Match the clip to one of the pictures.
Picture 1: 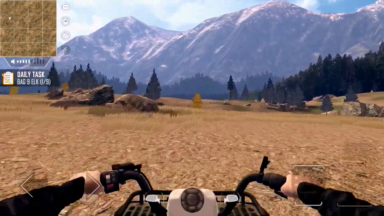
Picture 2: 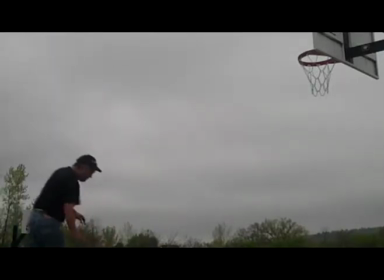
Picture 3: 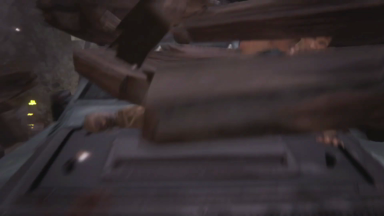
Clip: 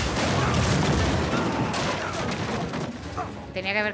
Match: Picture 3